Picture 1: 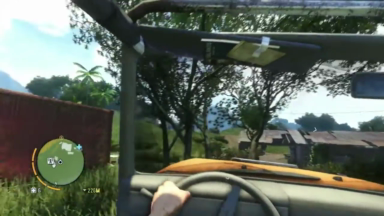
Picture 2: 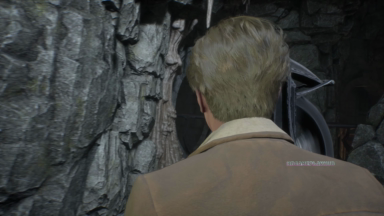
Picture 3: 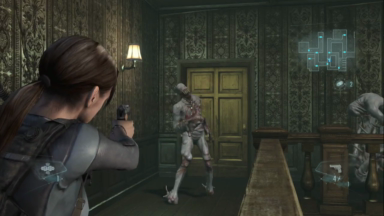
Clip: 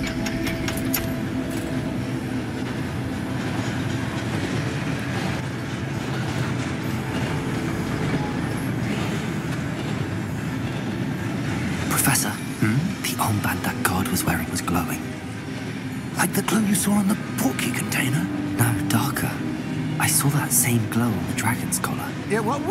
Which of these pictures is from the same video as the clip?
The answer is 2